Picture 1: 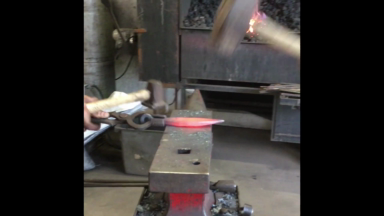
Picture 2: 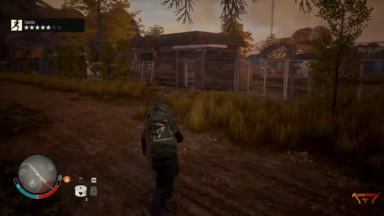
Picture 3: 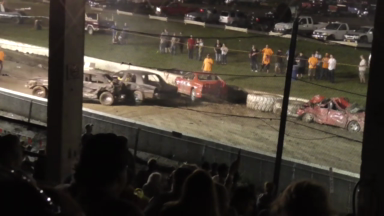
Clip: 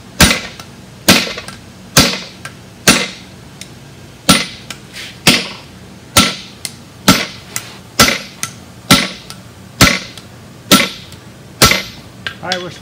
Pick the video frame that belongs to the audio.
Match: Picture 1